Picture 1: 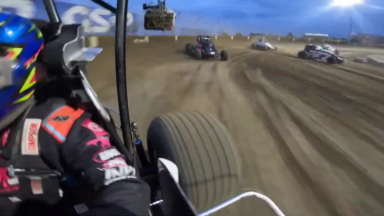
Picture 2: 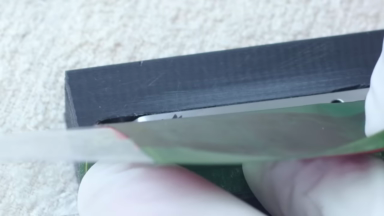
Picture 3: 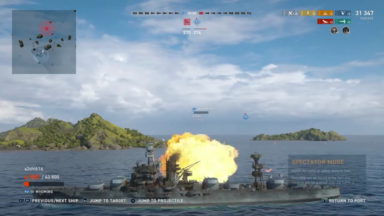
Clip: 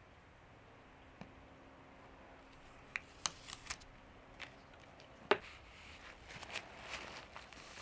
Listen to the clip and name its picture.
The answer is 2